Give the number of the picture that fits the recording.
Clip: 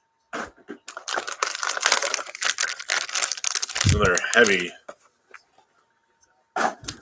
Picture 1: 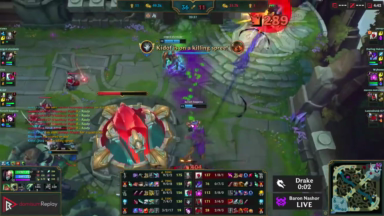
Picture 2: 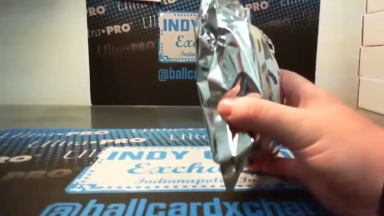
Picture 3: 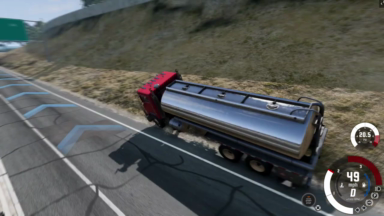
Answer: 2